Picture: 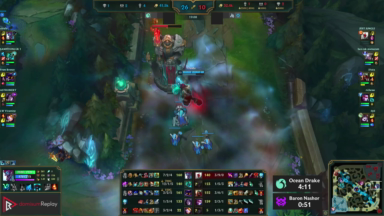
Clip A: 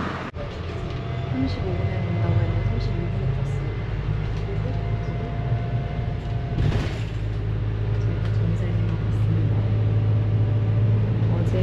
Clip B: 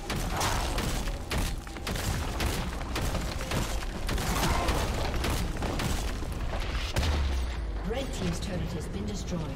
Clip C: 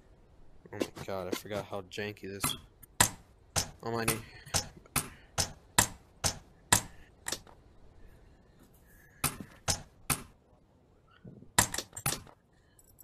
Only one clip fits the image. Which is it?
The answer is B